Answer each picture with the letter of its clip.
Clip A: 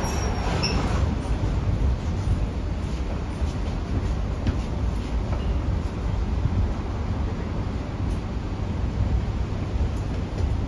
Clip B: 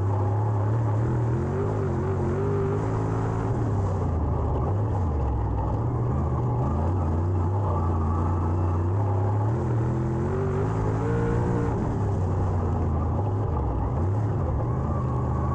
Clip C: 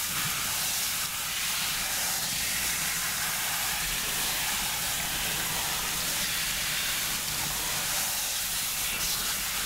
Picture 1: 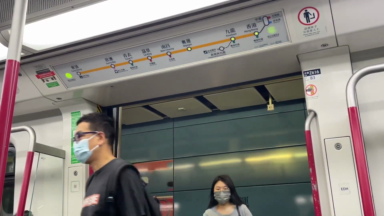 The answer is A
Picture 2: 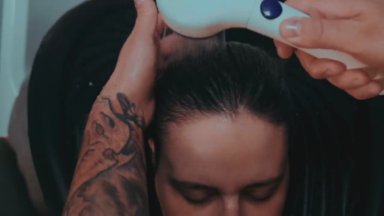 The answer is C